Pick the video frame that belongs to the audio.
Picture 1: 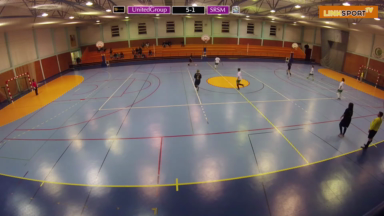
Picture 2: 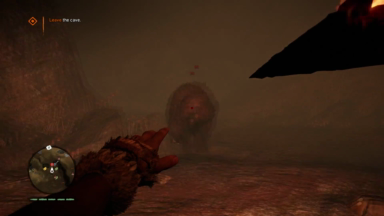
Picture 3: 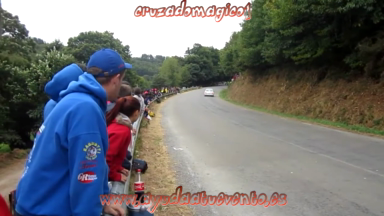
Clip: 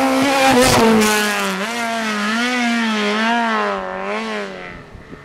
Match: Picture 3